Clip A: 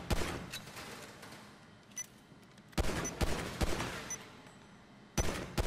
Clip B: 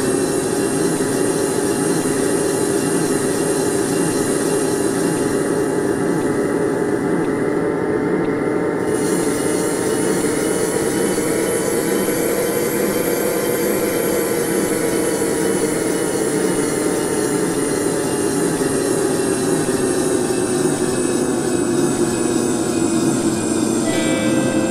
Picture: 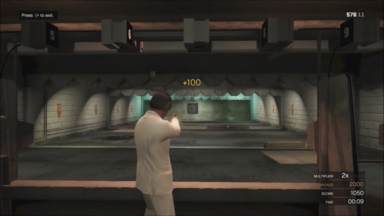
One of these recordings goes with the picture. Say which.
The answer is A